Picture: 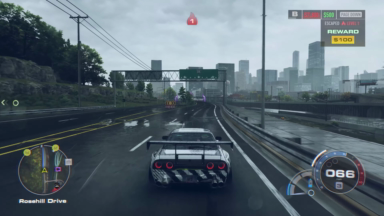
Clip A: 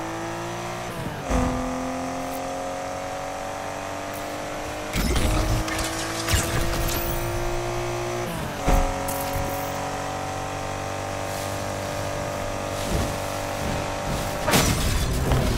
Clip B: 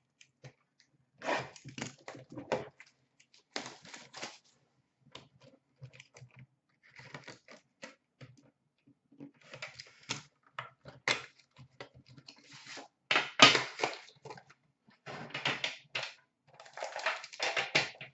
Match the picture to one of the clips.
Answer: A